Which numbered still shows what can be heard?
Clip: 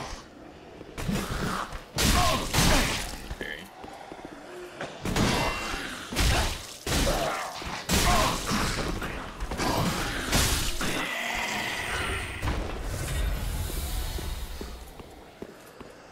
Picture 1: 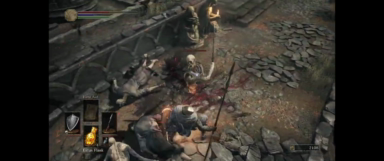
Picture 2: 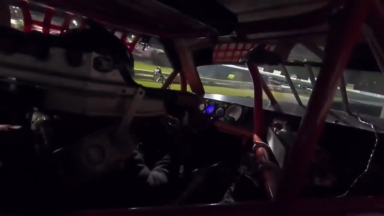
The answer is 1